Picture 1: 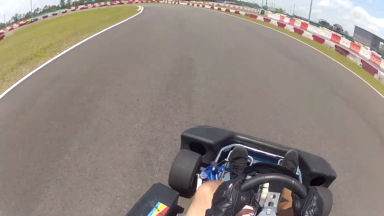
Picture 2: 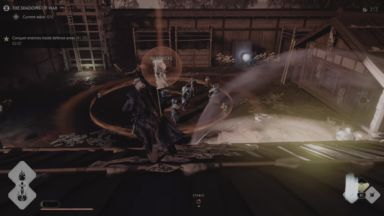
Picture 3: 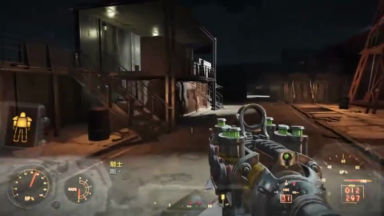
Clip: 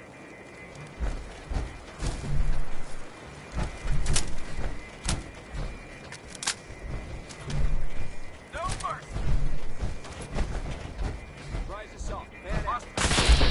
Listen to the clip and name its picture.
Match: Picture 3